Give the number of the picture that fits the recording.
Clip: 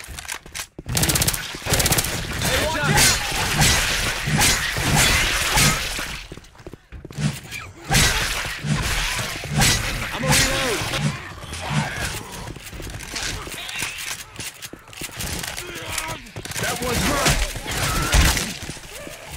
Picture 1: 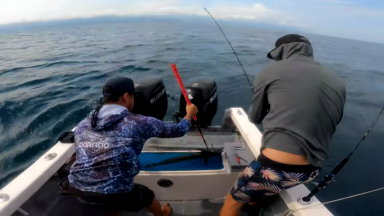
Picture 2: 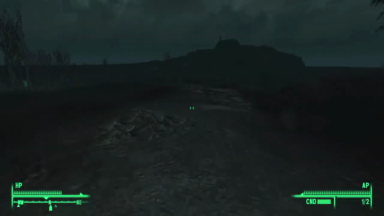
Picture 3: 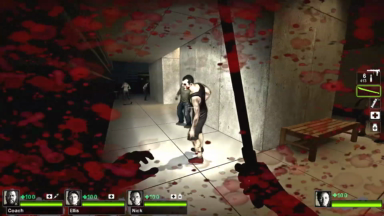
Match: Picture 3